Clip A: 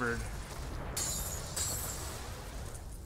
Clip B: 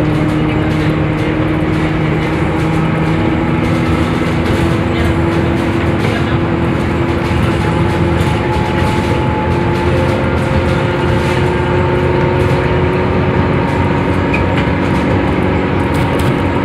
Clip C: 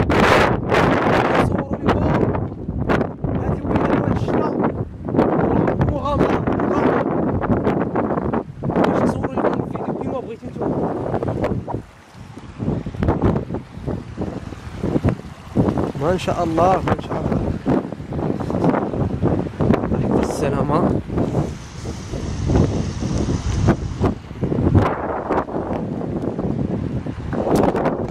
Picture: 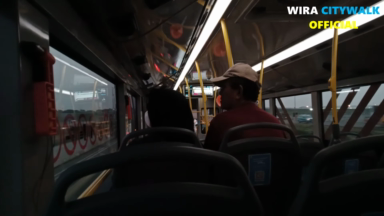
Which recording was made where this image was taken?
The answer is B